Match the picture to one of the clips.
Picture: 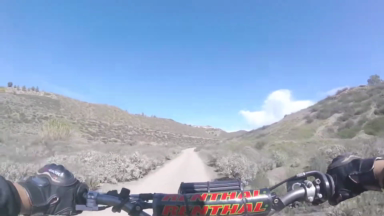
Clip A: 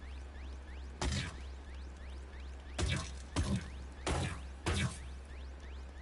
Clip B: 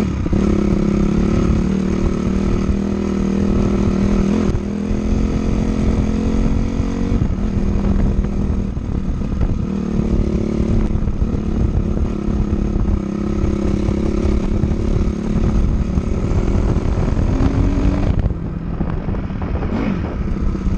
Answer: B